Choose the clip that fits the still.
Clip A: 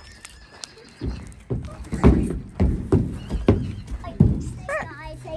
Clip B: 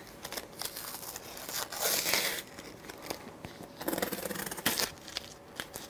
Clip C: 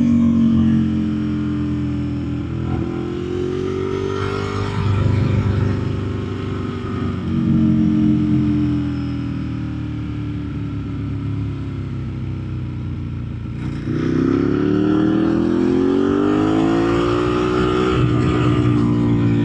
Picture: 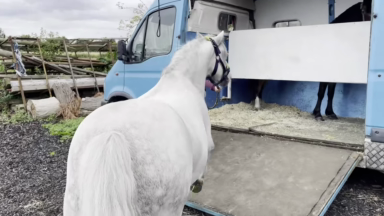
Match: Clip A